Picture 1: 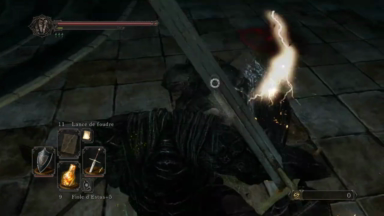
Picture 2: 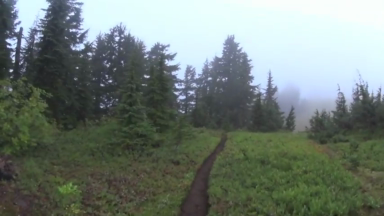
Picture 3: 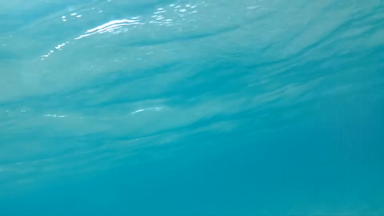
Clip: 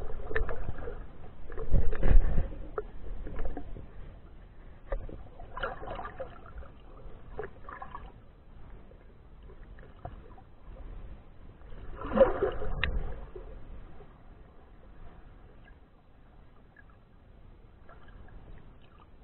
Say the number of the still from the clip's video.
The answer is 3